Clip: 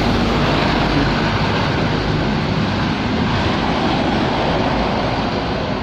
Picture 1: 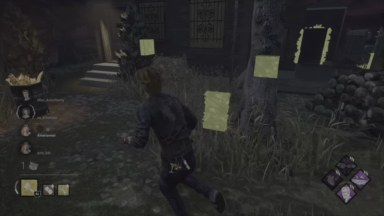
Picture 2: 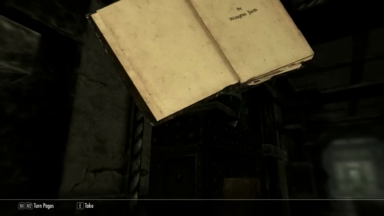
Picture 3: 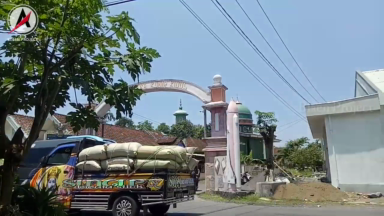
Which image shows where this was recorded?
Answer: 3